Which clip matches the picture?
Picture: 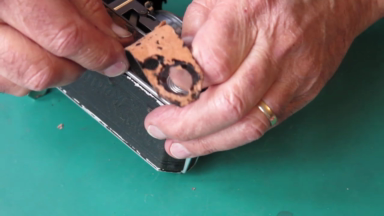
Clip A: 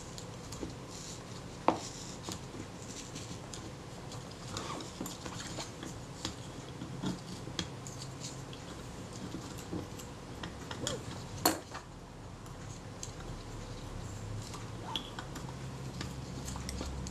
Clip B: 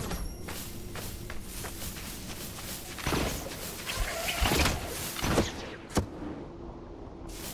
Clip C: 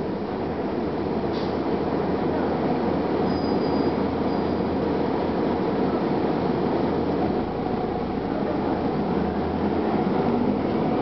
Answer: A